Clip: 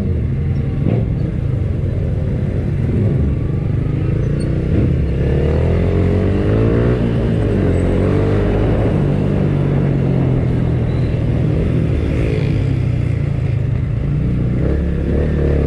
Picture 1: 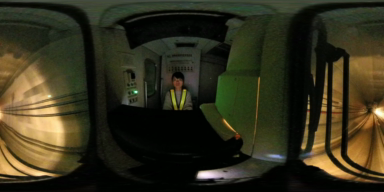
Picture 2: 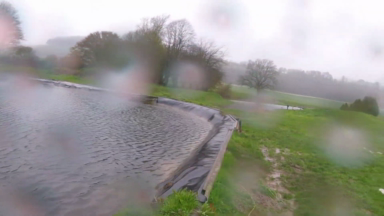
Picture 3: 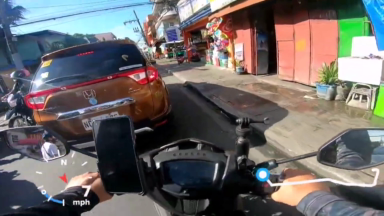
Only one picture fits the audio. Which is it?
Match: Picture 3